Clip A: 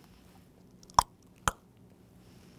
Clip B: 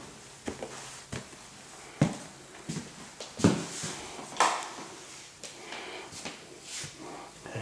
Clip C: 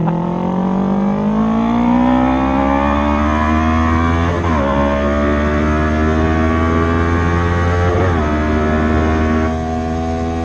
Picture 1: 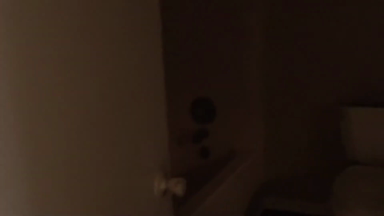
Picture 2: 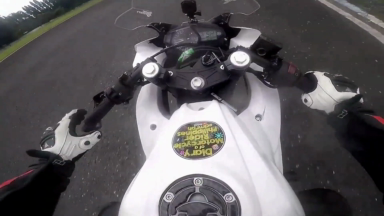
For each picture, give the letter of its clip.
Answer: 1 B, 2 C